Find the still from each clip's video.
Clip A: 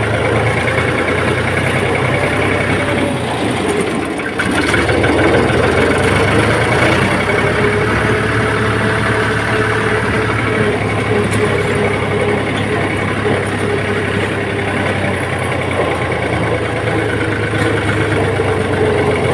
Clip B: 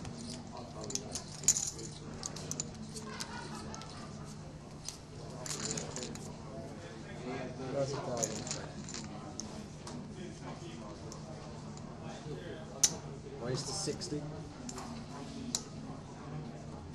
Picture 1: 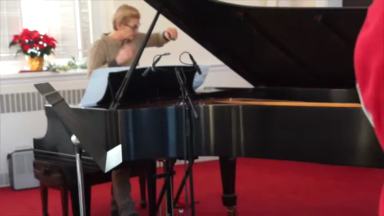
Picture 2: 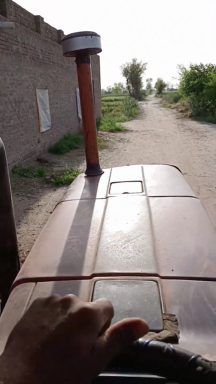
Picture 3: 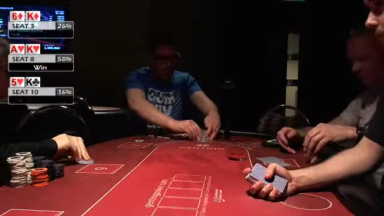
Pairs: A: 2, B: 3